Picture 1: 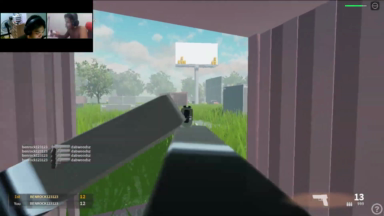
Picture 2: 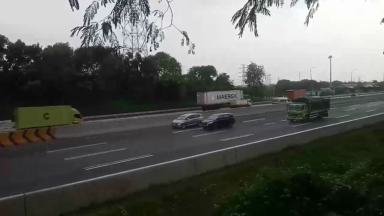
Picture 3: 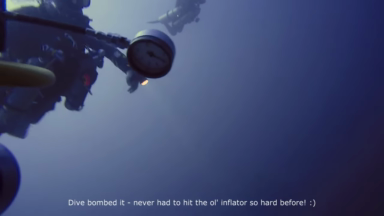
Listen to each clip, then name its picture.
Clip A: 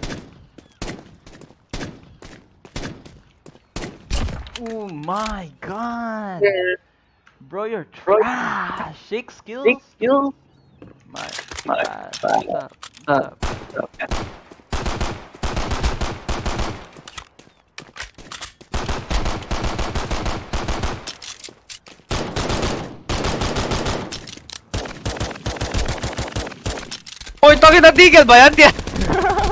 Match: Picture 1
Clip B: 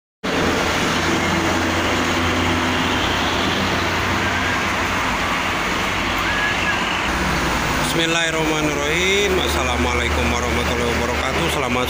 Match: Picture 2